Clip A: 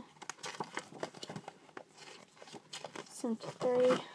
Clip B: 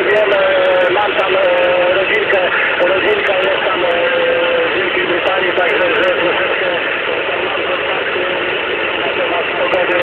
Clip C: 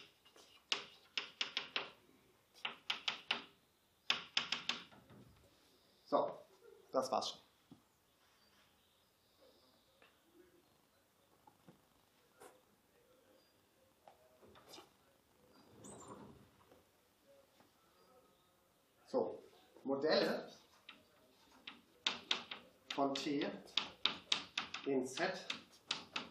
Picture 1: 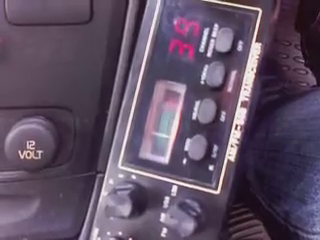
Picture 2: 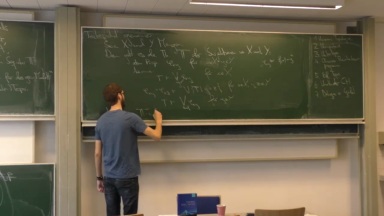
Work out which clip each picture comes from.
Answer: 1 B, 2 C